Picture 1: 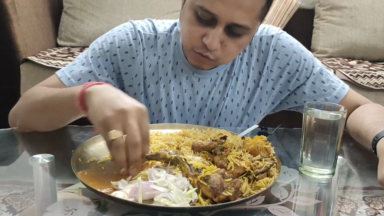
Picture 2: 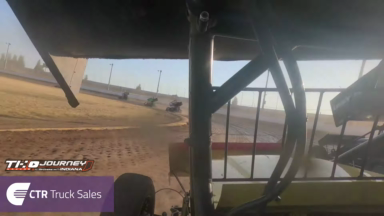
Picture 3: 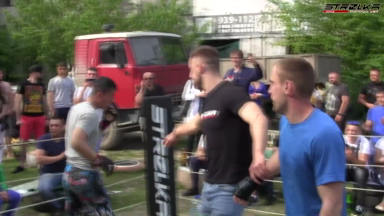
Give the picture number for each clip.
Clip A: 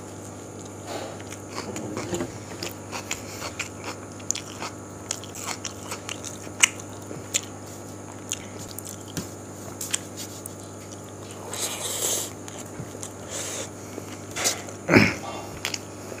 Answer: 1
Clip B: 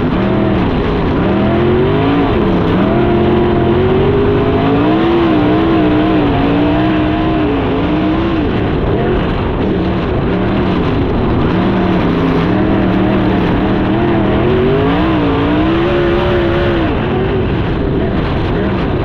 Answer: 2